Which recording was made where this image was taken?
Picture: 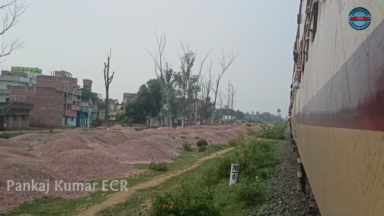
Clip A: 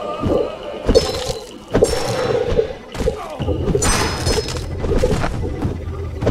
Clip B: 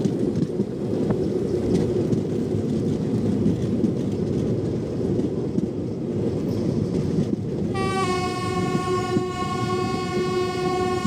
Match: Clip B